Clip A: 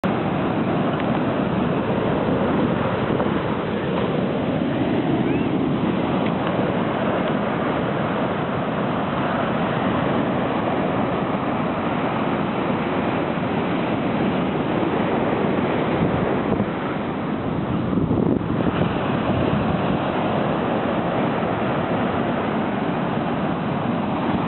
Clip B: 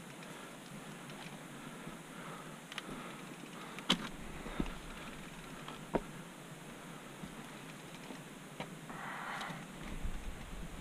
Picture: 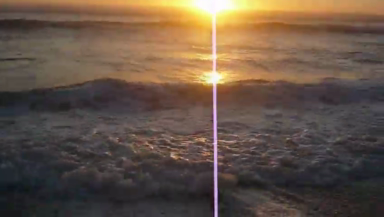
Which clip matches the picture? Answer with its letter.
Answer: A